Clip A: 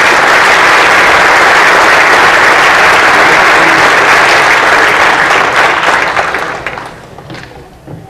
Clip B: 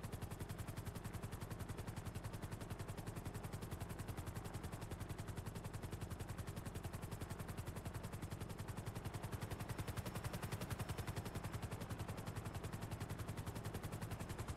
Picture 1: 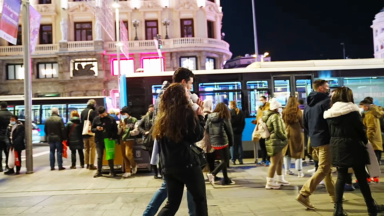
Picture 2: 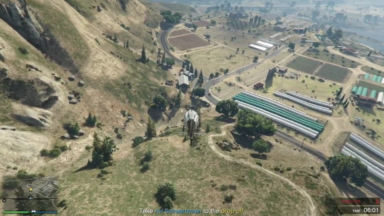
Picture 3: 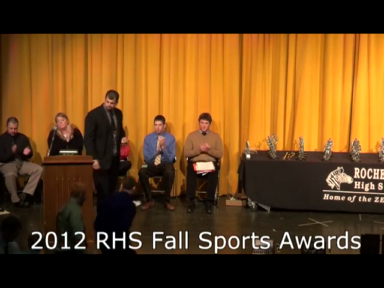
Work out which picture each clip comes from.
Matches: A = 3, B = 2